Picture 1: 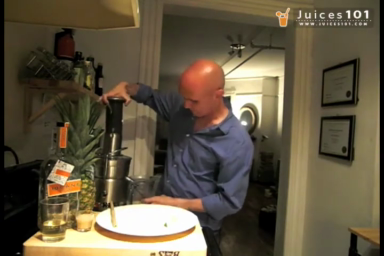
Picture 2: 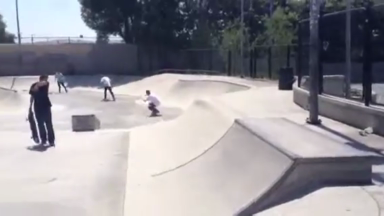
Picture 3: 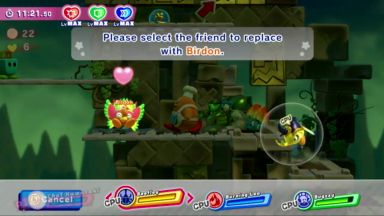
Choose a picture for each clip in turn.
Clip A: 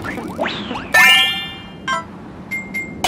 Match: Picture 3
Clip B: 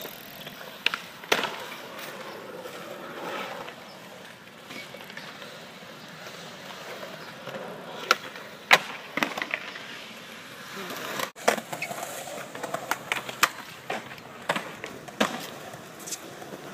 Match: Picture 2